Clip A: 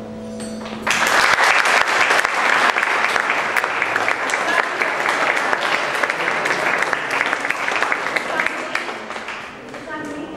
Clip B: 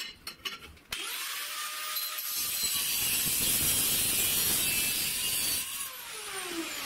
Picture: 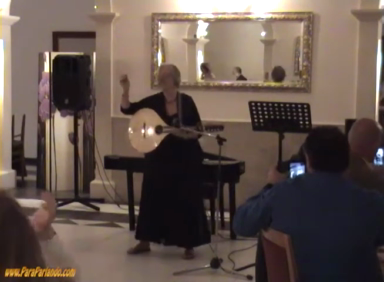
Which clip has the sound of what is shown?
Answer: A